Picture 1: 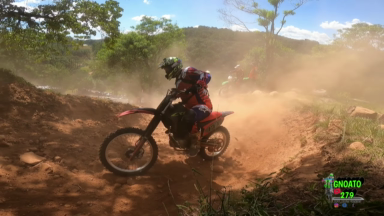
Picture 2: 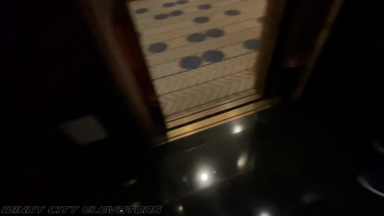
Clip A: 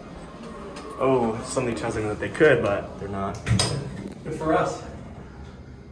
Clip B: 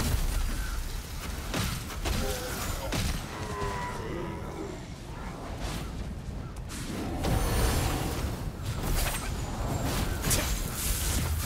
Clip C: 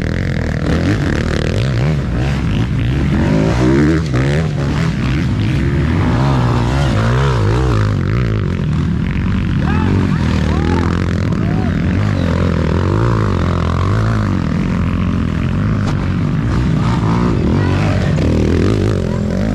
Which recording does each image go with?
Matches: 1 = C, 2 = A